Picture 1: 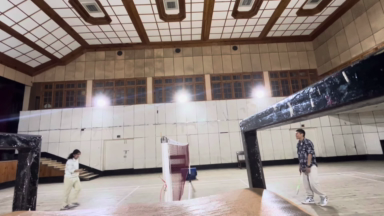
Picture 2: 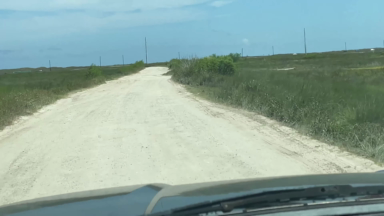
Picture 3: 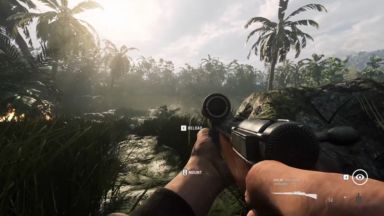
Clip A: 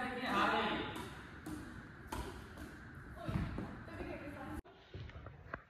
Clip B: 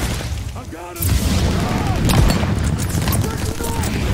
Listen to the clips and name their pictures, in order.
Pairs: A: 1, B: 3